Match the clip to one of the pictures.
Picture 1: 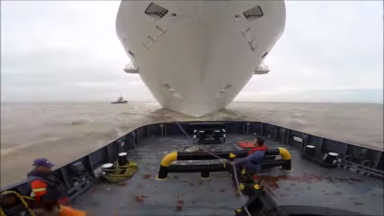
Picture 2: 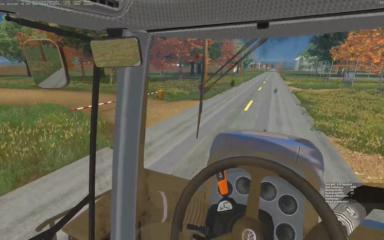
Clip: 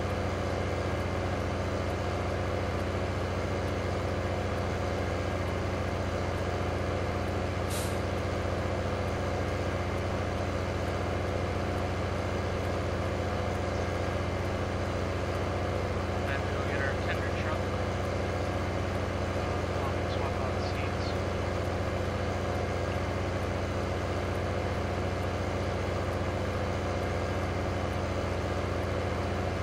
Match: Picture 2